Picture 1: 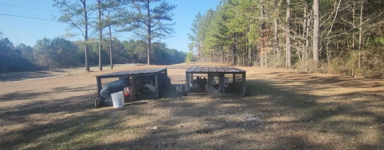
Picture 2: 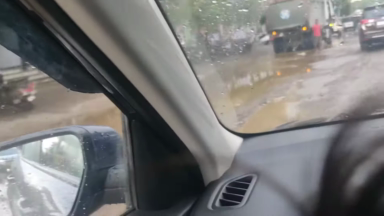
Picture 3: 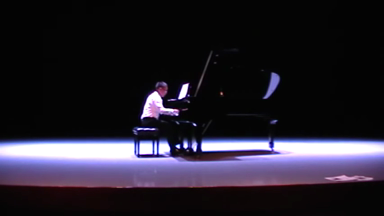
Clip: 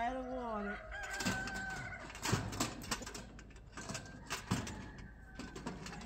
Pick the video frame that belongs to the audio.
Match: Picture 1